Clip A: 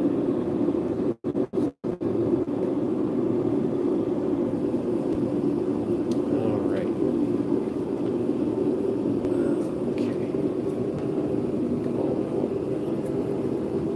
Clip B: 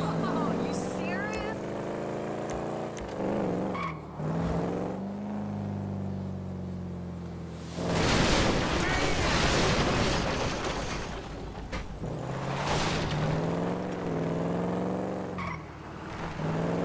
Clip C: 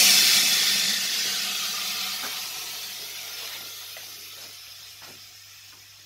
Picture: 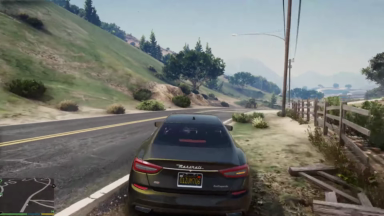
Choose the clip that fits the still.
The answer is B